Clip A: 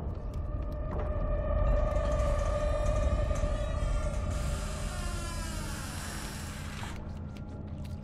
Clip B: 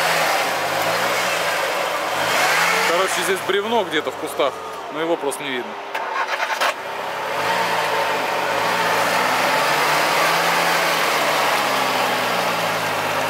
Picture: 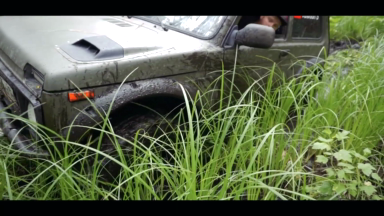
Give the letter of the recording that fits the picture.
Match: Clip B